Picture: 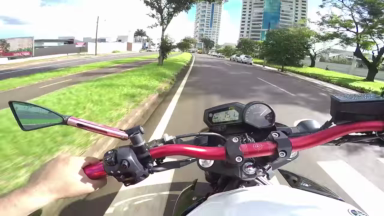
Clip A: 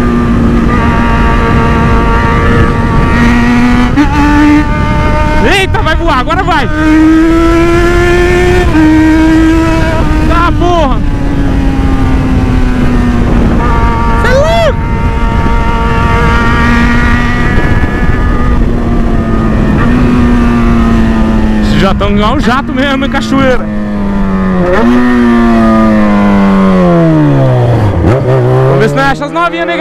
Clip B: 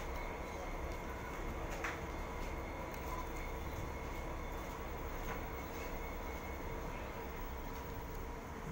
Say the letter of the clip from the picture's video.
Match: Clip A